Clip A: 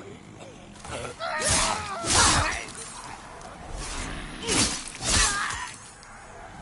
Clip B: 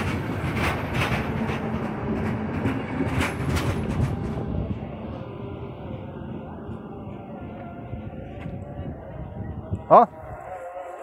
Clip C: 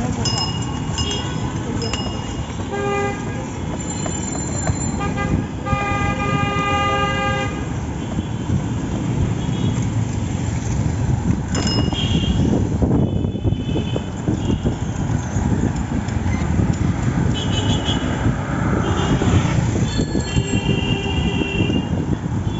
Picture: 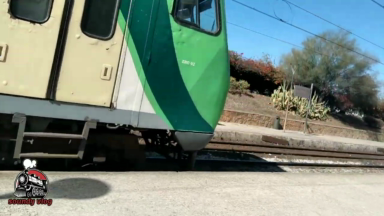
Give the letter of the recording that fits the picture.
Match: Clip B